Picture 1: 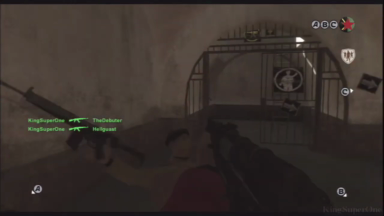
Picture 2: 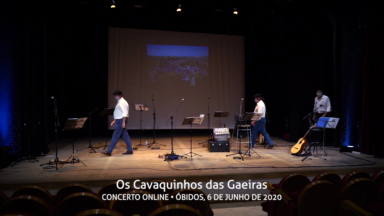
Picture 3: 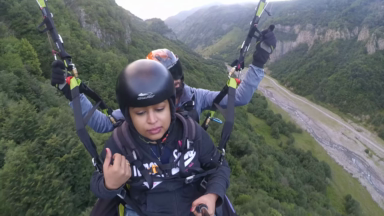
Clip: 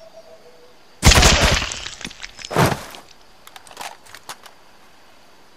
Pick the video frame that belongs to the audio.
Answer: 1